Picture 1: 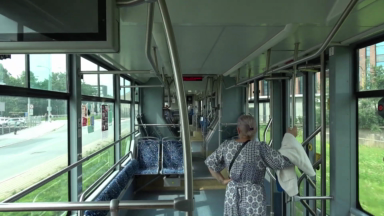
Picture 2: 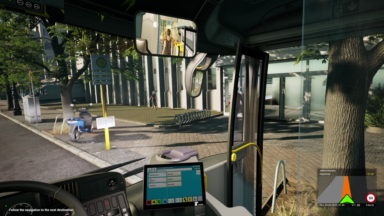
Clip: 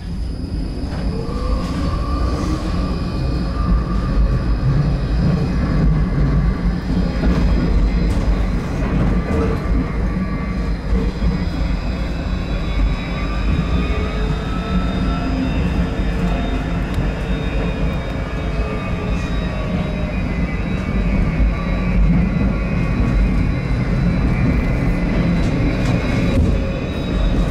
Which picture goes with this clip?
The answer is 1